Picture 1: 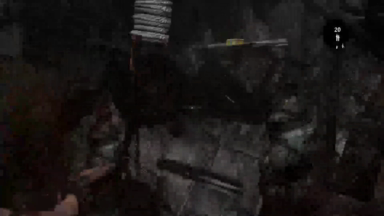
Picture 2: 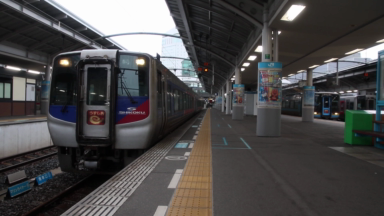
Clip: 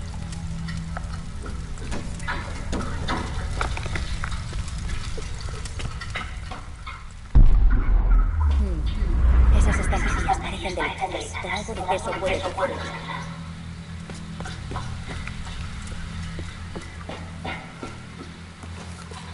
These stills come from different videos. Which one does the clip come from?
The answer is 1